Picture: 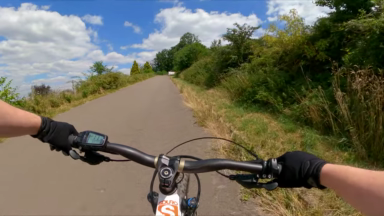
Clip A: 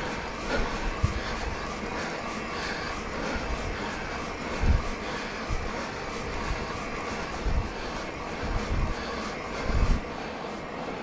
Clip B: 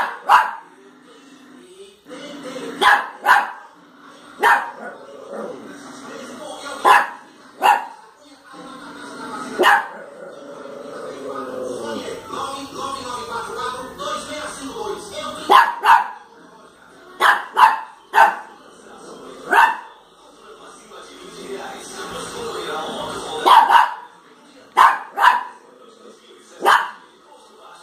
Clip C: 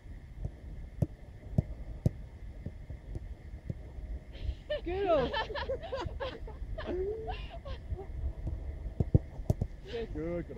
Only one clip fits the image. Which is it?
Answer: A